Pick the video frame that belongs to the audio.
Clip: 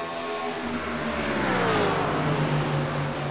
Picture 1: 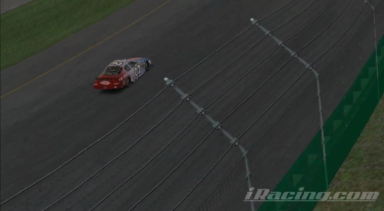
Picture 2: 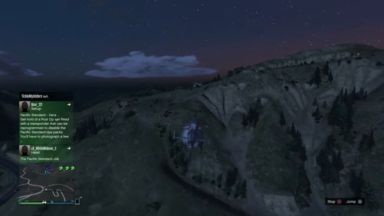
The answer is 1